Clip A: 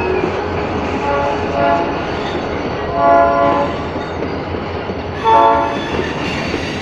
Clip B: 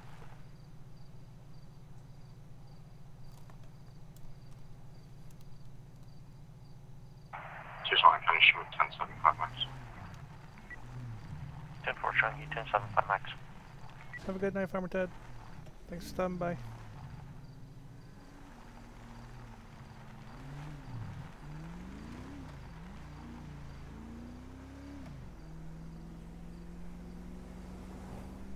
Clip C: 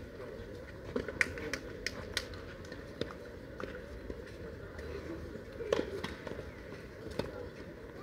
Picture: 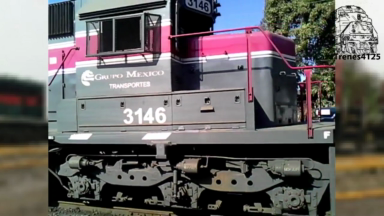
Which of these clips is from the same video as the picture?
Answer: A